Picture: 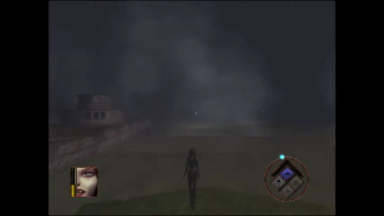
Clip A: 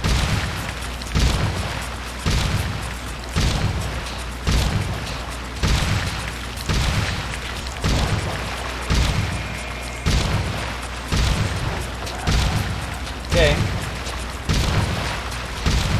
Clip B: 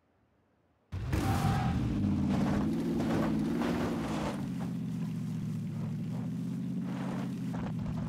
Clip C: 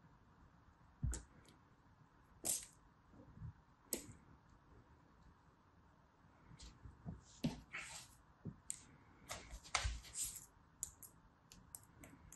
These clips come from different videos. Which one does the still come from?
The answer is A